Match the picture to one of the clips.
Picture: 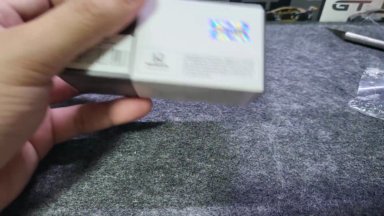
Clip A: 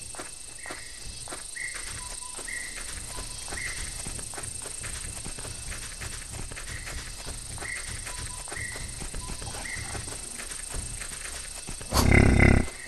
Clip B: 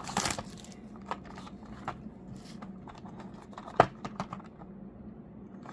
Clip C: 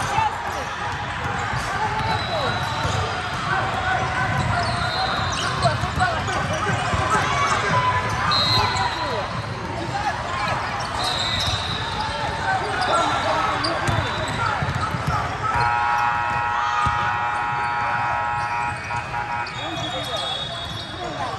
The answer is B